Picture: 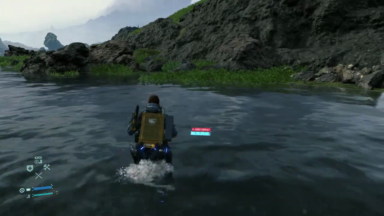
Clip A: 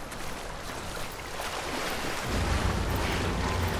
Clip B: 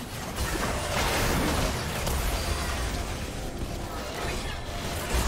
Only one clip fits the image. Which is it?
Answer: A